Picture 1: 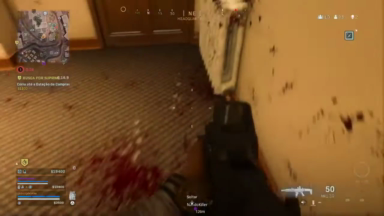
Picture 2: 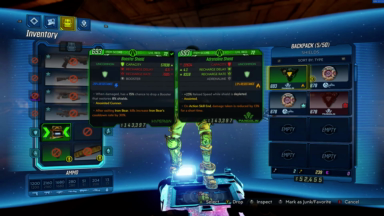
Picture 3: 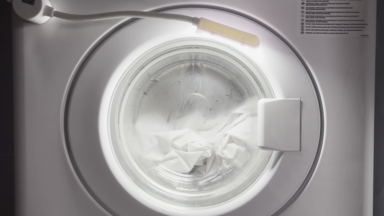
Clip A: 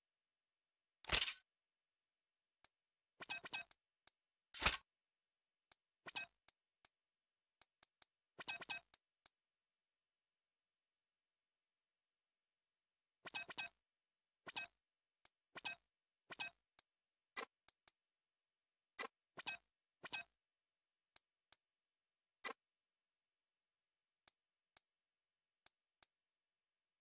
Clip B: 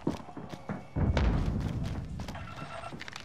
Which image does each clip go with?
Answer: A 2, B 1